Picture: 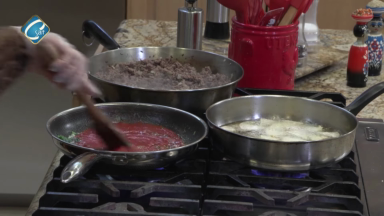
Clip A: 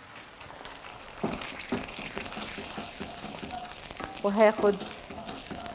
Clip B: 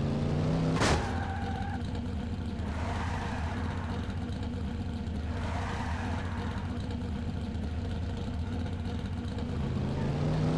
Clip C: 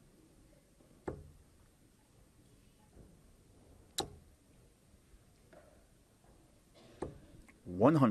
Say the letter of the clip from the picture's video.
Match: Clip A